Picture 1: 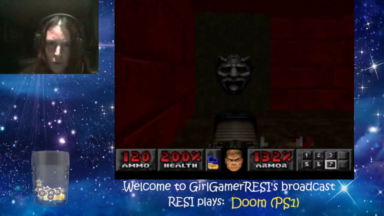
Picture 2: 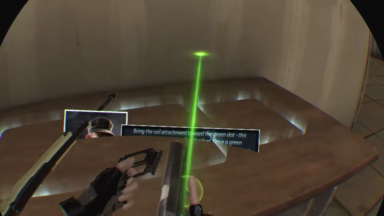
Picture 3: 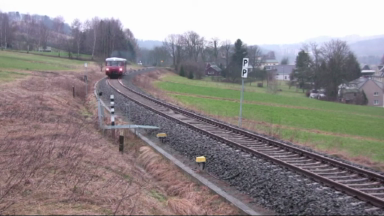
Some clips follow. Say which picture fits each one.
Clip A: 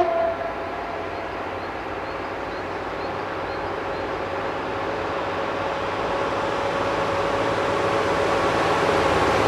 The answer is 3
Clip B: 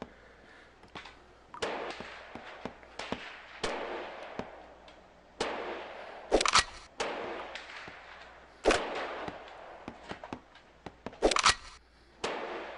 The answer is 2